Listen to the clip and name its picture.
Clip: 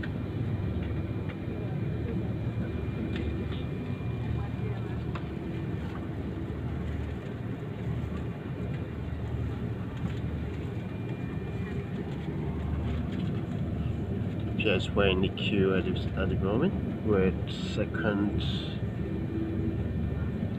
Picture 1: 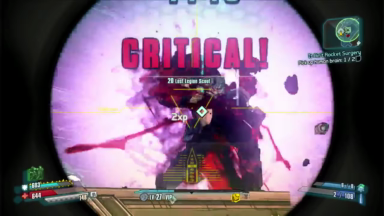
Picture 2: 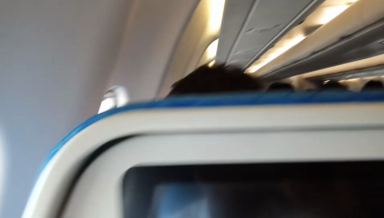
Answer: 2